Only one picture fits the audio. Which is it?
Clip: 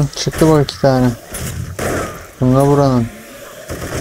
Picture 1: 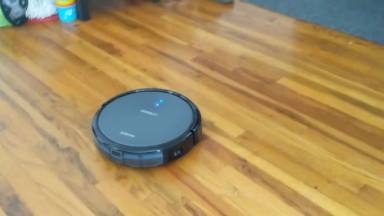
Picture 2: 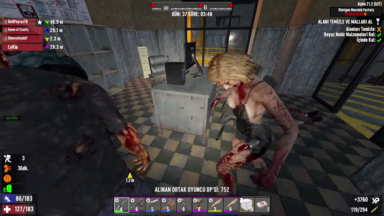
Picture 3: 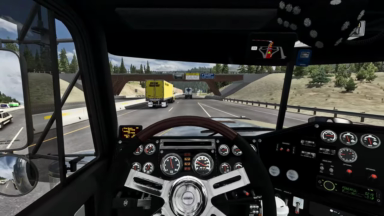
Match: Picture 2